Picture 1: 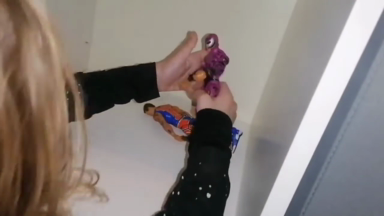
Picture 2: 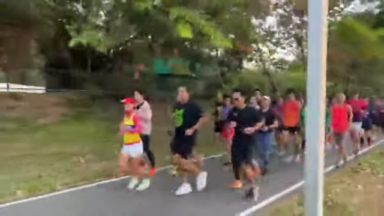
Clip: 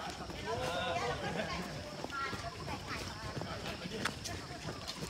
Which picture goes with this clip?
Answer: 2